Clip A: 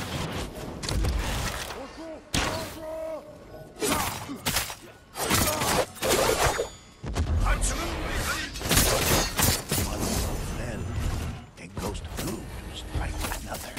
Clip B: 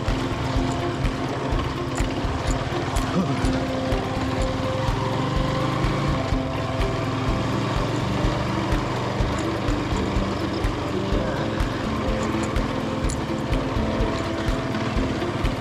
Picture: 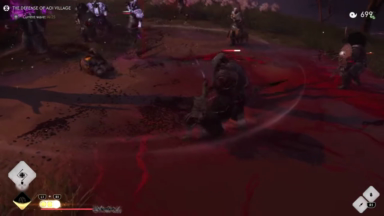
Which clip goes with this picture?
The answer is A